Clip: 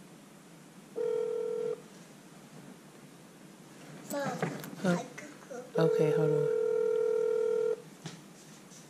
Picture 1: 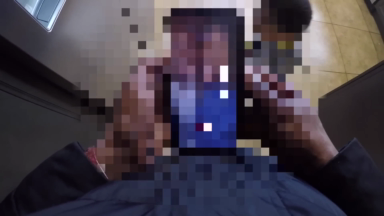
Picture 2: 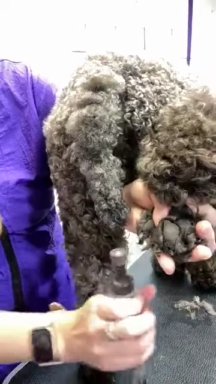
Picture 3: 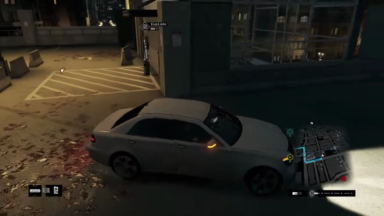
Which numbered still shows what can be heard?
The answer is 1